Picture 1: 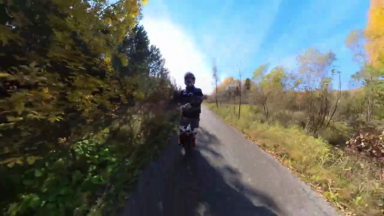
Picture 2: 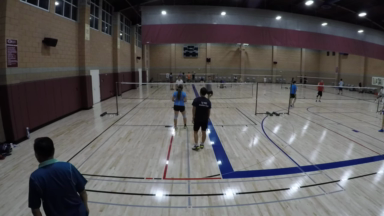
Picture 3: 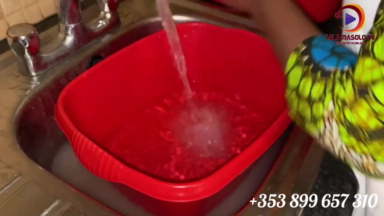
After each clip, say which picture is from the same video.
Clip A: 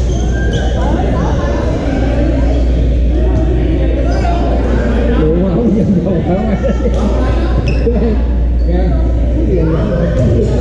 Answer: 2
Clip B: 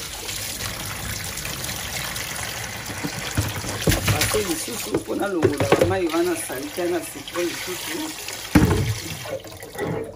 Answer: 3